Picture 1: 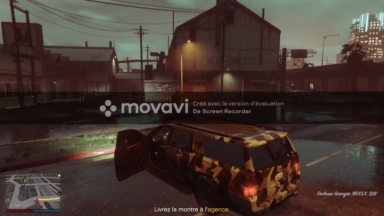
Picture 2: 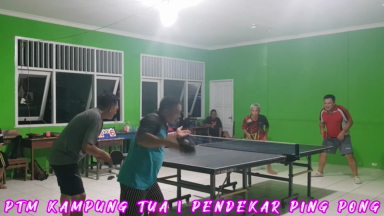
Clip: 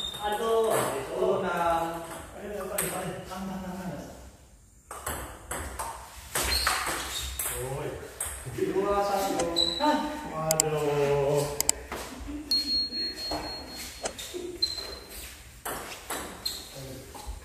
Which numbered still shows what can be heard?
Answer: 2